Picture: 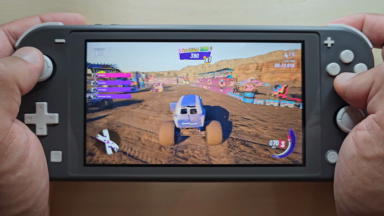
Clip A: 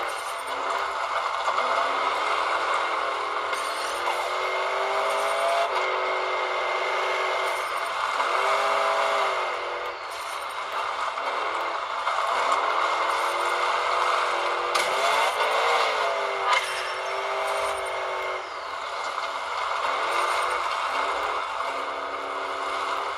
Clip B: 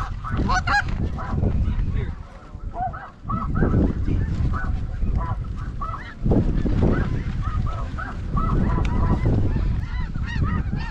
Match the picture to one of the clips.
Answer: A